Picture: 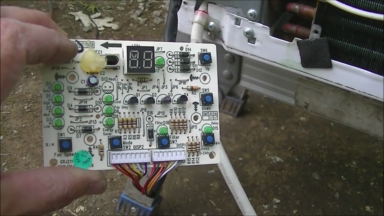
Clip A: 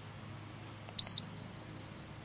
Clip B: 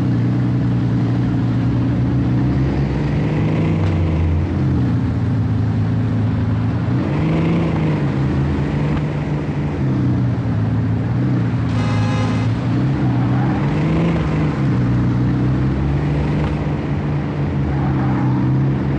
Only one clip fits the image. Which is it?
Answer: A